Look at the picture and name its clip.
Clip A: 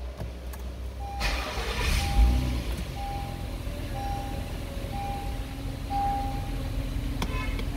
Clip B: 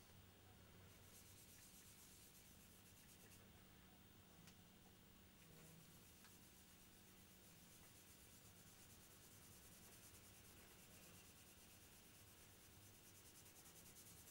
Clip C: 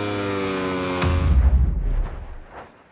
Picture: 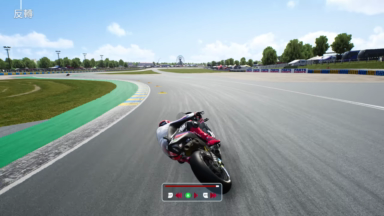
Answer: C